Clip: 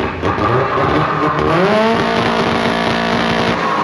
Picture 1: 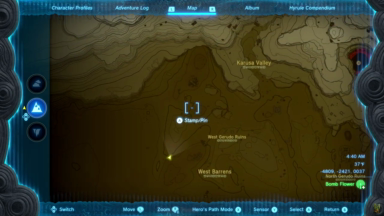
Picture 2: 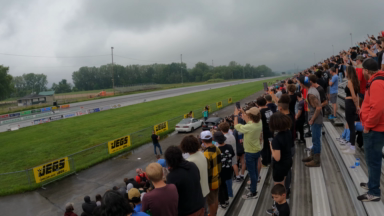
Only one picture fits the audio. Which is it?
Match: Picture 2